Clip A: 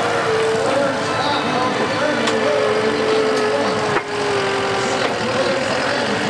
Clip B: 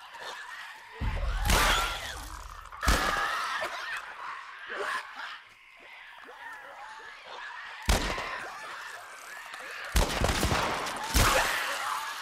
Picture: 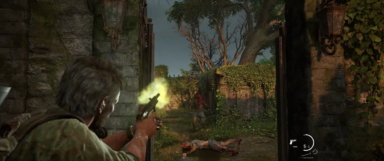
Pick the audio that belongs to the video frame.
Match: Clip B